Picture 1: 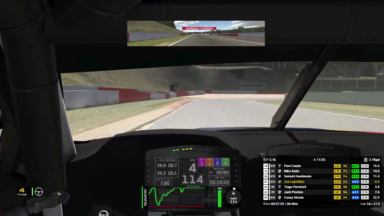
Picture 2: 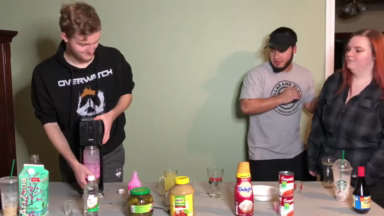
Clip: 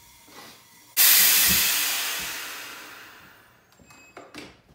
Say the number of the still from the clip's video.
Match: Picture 2